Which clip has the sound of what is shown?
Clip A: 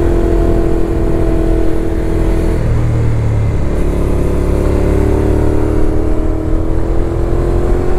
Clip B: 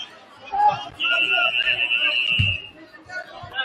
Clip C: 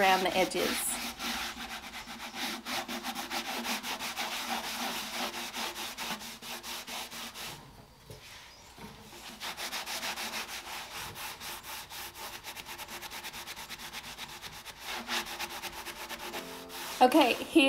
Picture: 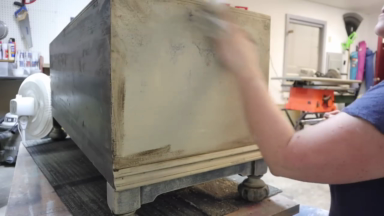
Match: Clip C